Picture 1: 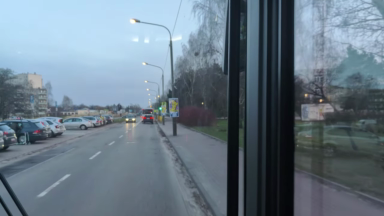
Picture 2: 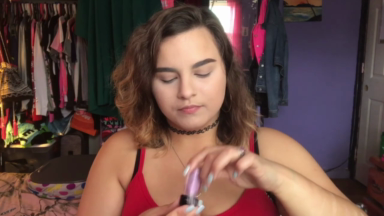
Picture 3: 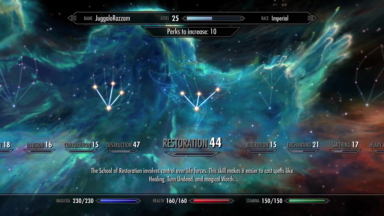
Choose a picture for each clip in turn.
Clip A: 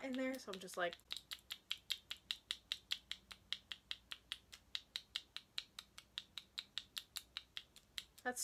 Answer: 2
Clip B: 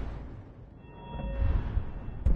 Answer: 3